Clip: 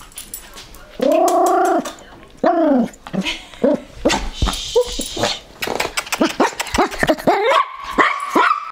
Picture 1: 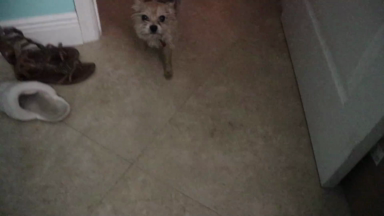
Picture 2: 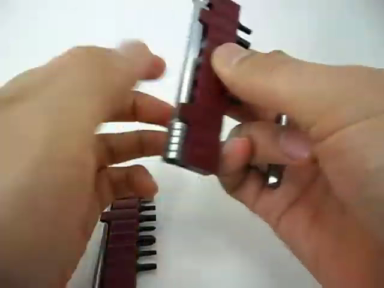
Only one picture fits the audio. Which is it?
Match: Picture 1